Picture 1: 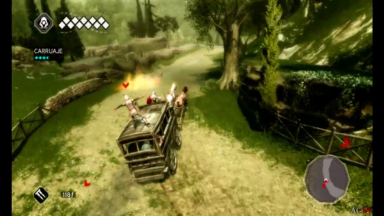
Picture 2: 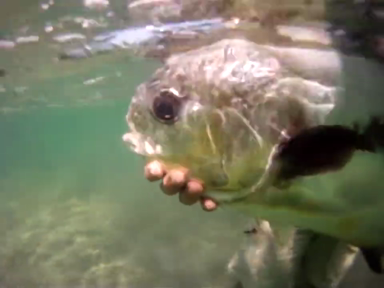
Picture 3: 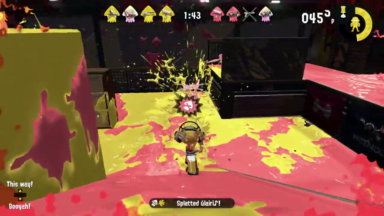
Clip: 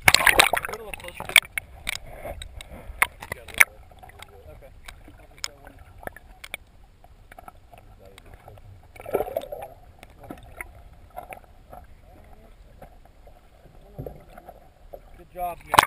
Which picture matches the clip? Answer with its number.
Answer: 2